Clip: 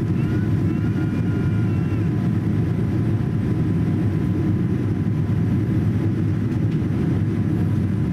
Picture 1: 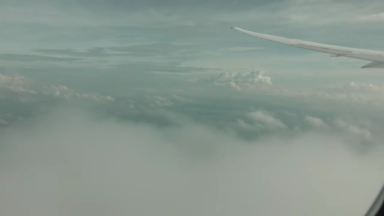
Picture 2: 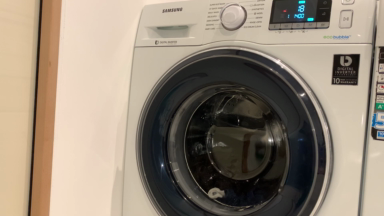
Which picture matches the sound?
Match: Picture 1